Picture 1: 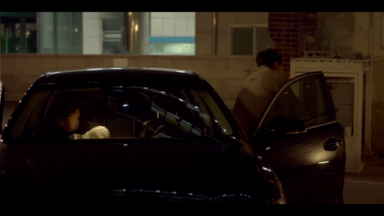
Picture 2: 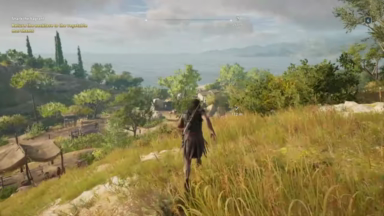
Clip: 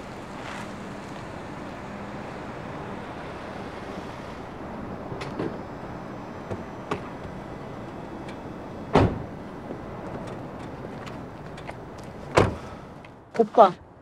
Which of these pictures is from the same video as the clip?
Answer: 1